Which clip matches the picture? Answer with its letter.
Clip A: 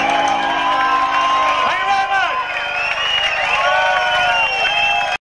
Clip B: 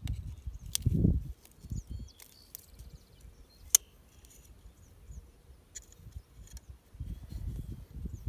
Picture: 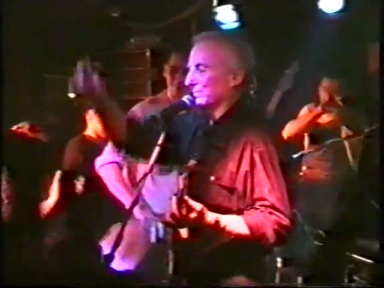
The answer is A